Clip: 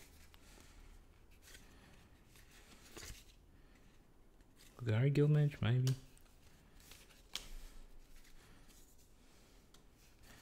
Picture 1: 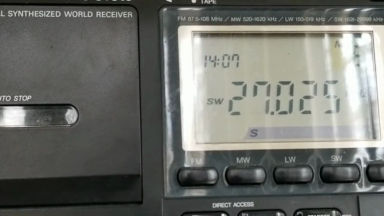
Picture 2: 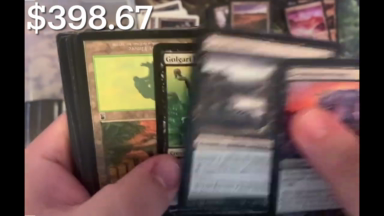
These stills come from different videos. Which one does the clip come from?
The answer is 2